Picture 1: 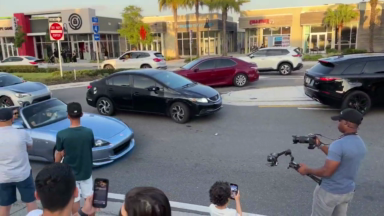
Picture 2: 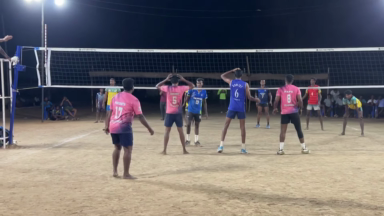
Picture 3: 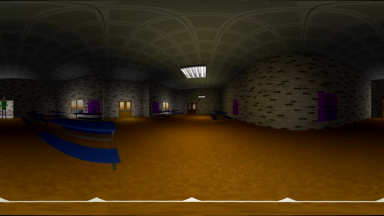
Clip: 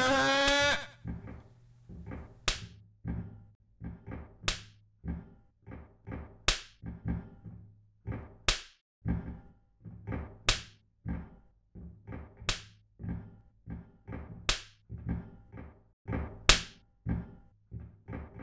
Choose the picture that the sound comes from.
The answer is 3